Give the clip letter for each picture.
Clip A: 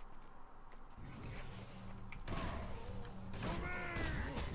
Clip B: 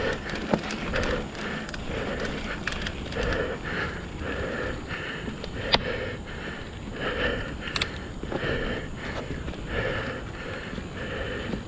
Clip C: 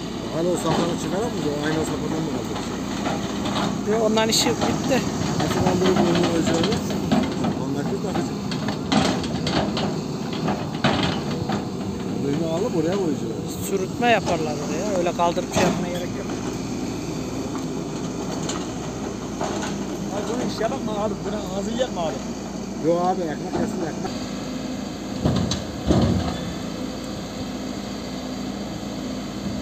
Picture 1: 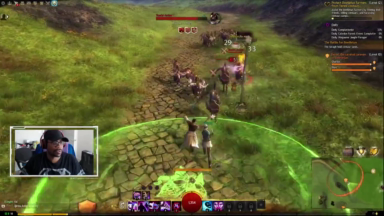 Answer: A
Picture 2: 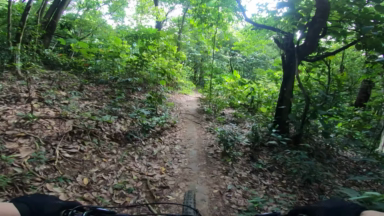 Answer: B